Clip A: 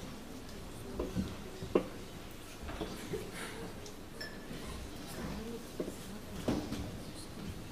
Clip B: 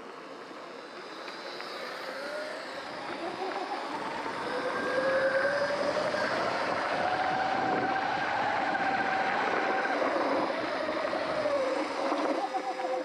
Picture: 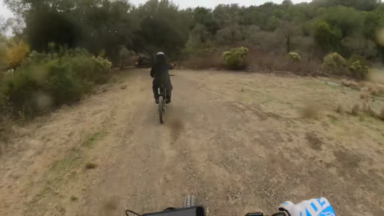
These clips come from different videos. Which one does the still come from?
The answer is B